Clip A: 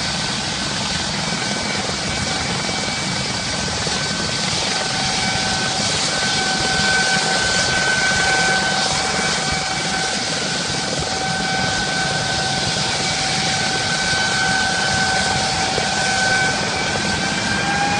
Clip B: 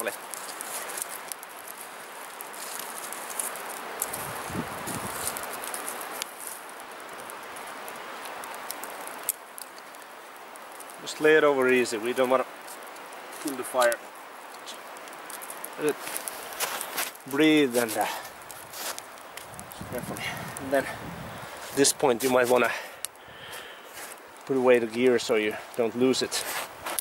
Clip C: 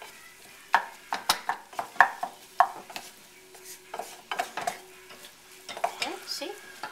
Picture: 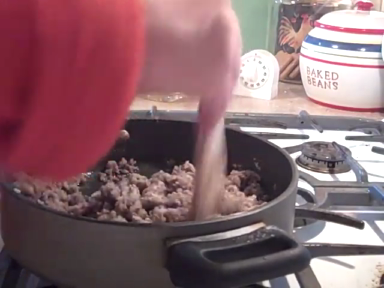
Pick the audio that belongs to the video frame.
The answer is C